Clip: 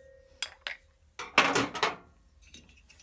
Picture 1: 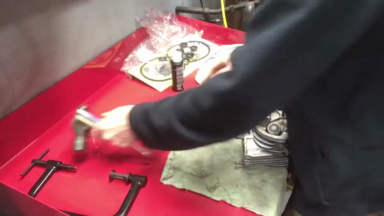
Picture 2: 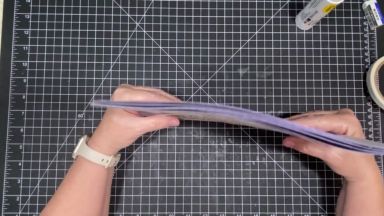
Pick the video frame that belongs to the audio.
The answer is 1